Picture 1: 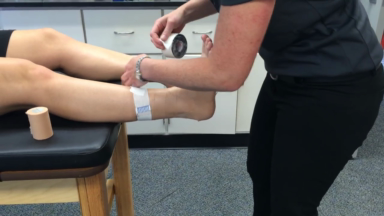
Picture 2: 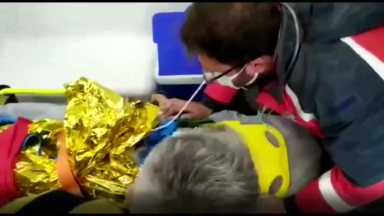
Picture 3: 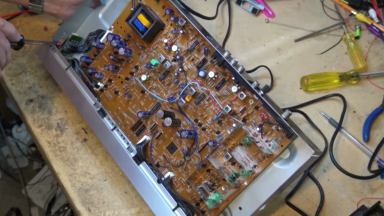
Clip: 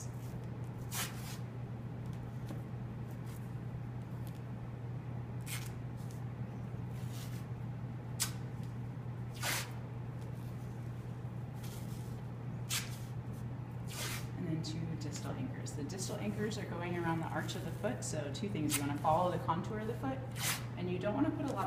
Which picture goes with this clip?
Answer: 1